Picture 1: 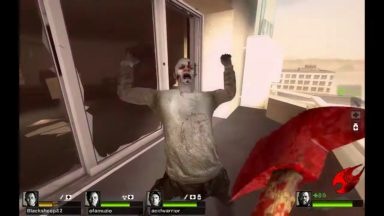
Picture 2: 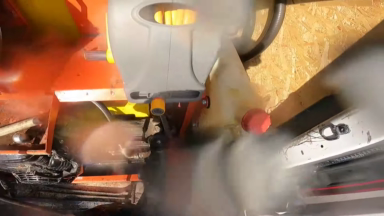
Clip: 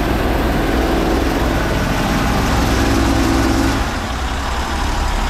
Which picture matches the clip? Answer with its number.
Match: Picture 2